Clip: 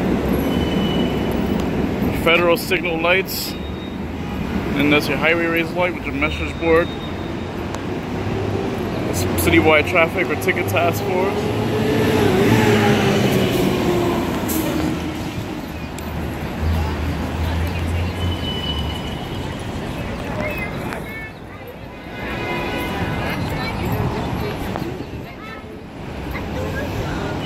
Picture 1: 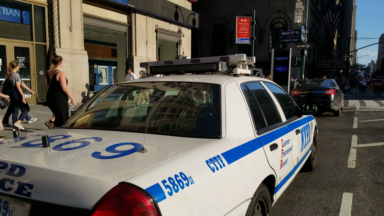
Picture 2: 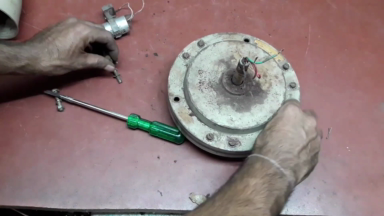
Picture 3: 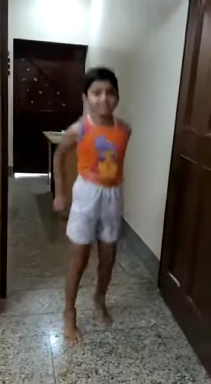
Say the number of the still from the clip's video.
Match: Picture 1